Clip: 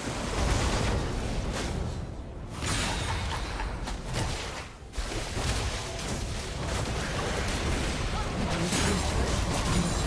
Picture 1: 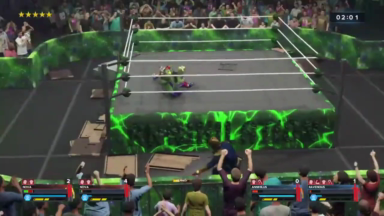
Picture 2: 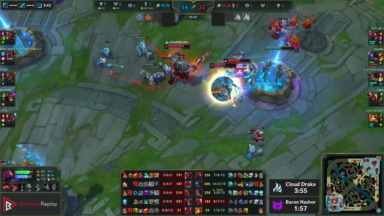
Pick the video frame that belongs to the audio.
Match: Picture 2